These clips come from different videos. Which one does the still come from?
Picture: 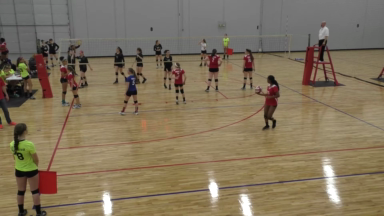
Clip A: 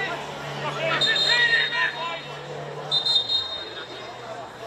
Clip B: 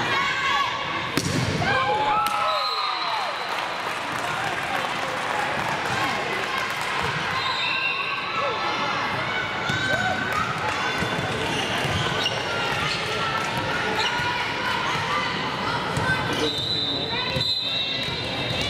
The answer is B